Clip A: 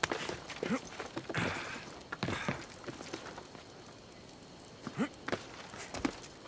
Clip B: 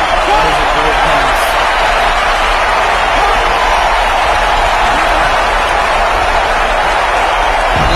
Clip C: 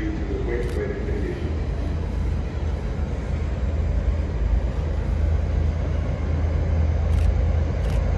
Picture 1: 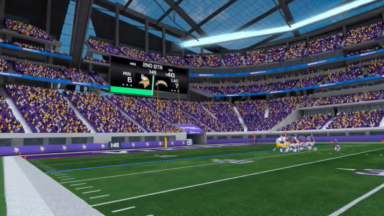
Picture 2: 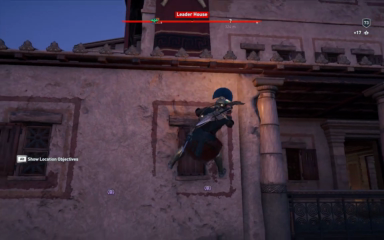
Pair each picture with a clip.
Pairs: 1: B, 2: A